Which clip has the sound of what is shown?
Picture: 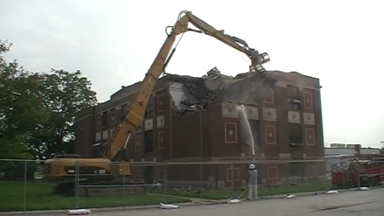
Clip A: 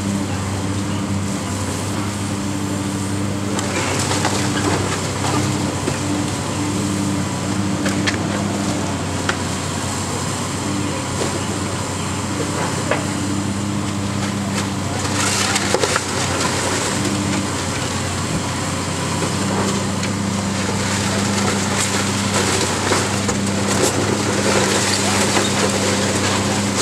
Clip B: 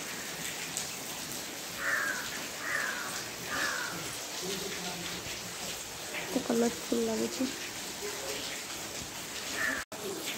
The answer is A